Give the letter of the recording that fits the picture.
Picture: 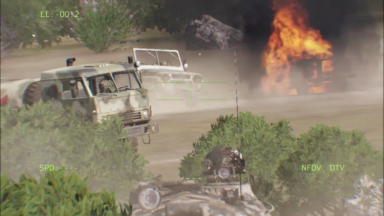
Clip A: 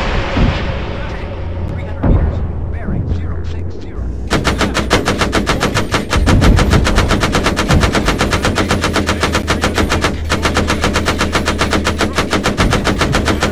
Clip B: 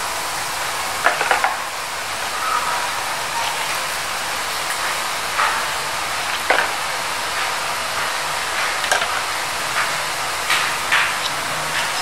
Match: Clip A